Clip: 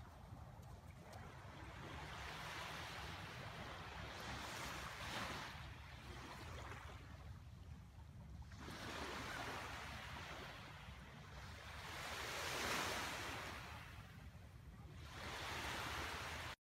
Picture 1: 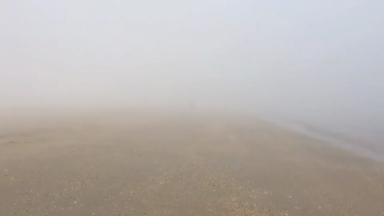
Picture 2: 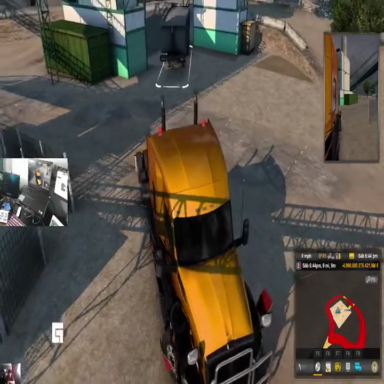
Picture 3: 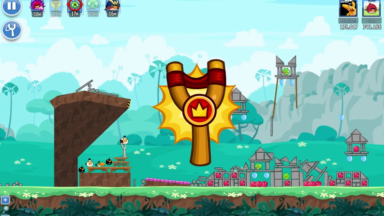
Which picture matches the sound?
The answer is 1